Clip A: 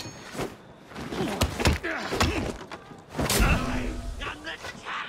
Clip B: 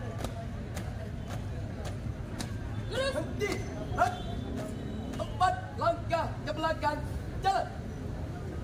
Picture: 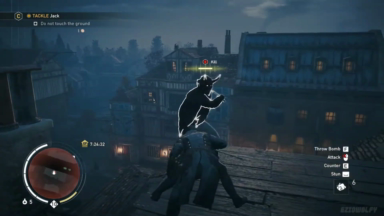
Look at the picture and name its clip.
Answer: A